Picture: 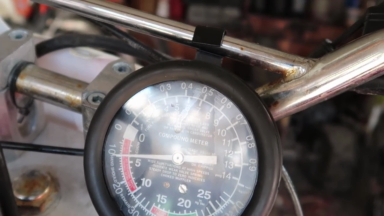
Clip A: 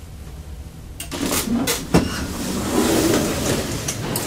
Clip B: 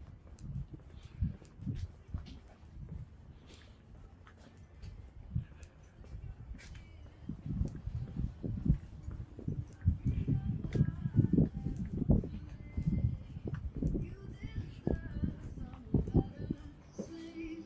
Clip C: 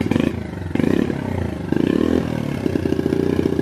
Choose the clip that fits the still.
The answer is C